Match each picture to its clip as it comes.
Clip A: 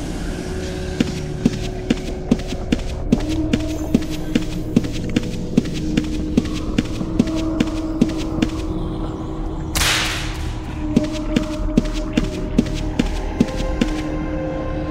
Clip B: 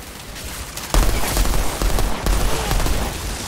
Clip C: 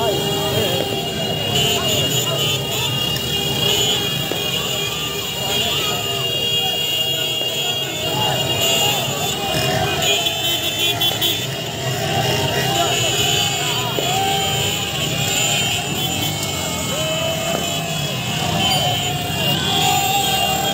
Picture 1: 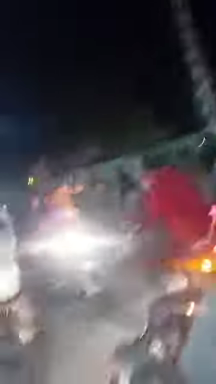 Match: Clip C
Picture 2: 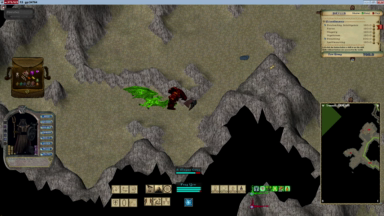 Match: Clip A